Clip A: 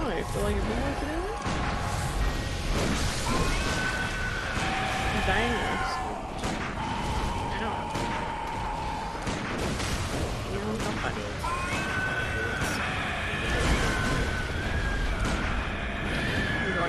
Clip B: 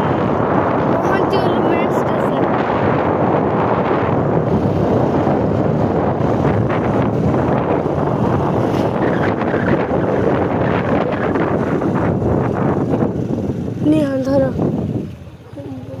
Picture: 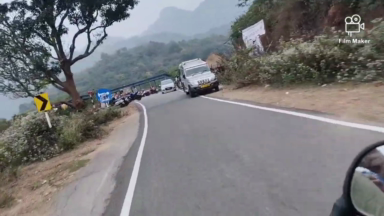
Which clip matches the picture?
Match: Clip B